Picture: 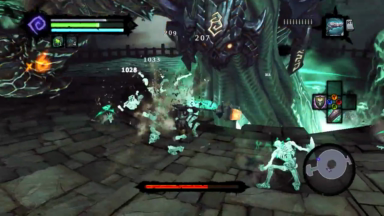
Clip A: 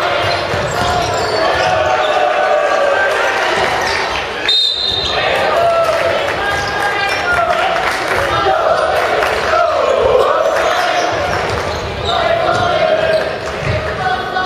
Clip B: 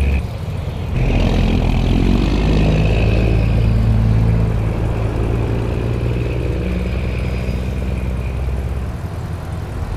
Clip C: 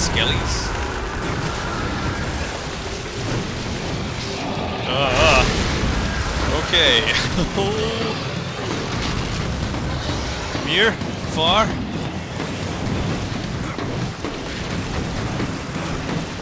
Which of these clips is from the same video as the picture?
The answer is C